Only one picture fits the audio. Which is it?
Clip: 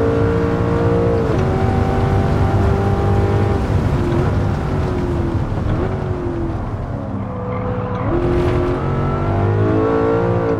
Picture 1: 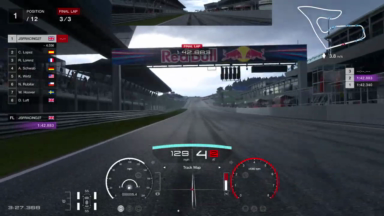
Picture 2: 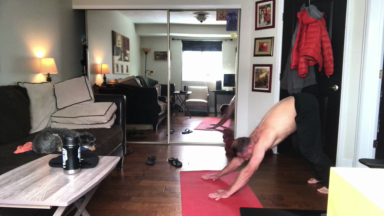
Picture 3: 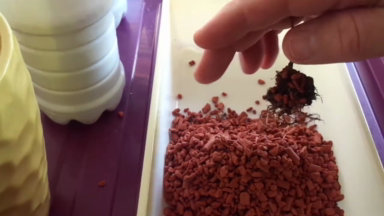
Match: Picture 1